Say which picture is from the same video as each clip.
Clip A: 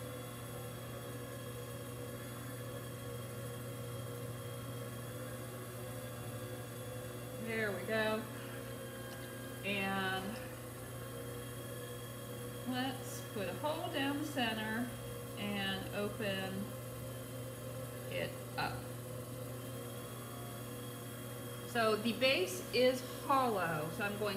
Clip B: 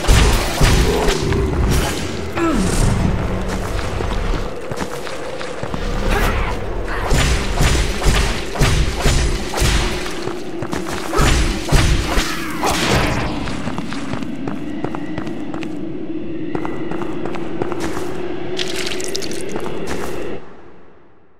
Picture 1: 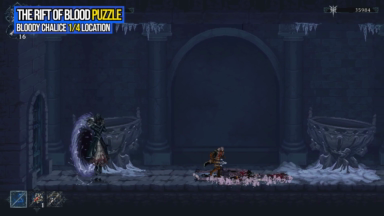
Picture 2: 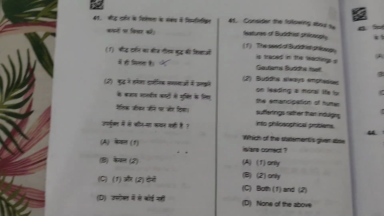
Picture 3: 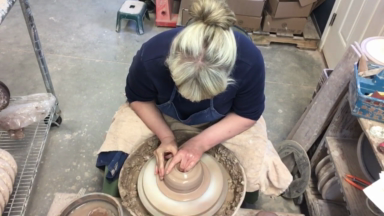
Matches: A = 3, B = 1